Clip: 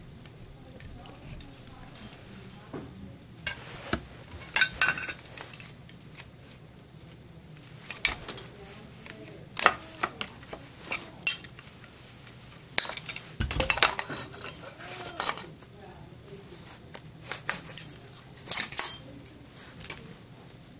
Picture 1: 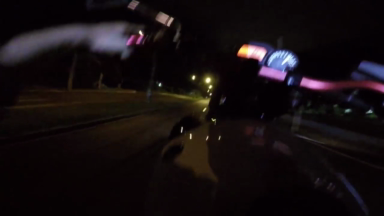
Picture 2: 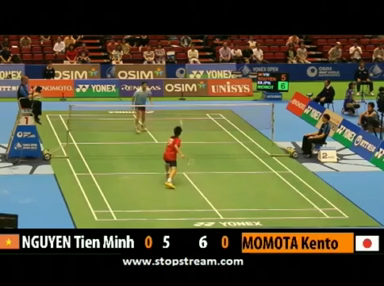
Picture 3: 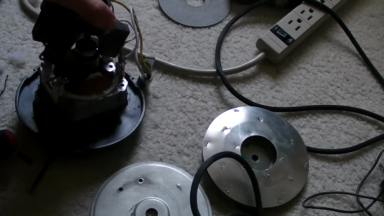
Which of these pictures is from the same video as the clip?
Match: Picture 3